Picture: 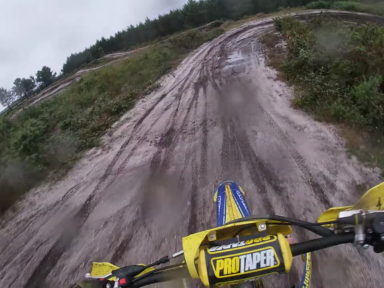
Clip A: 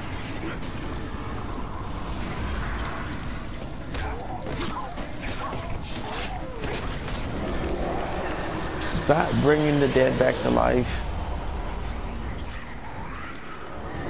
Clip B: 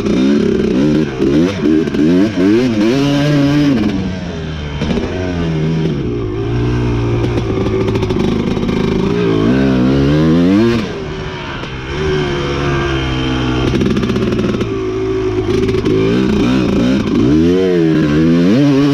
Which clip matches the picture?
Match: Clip B